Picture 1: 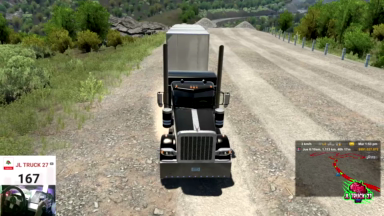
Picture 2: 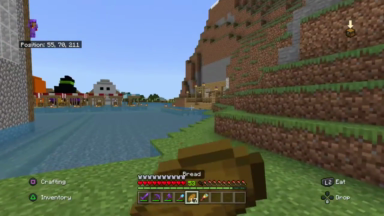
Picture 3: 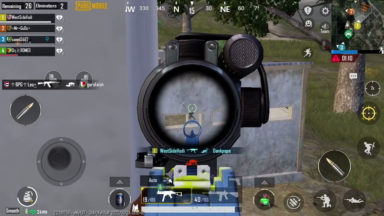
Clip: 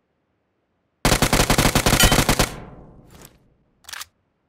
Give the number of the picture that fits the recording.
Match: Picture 3